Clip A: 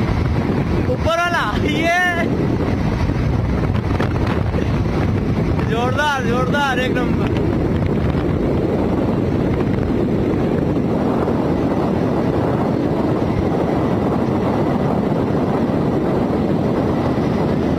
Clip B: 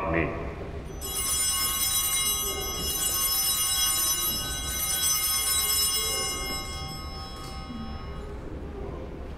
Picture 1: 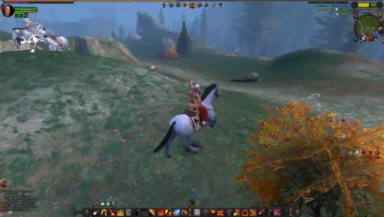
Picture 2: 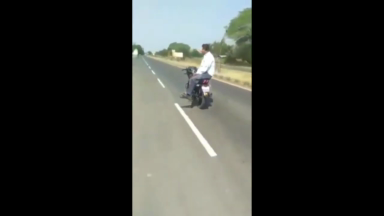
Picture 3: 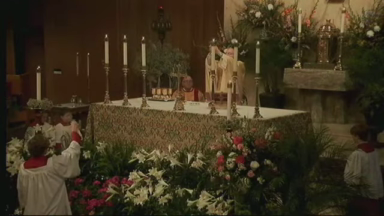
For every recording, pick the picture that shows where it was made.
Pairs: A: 2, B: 3